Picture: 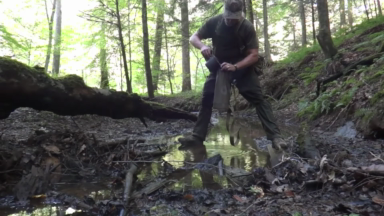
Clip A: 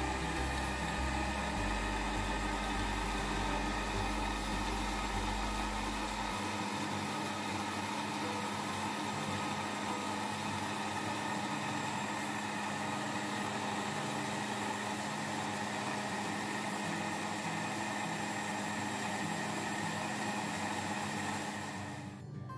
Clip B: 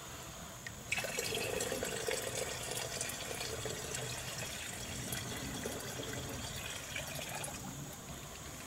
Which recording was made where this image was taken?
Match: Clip B